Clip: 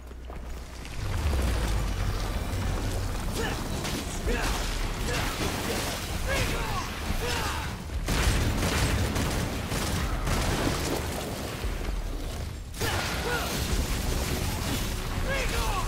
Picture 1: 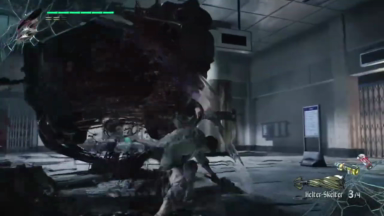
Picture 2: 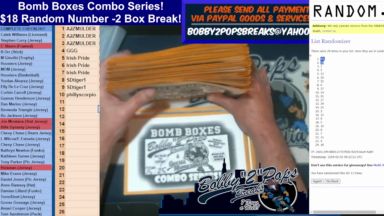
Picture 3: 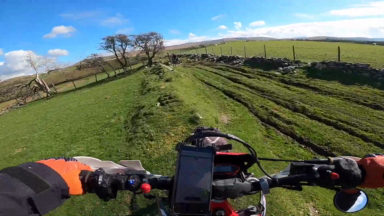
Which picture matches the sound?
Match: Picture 1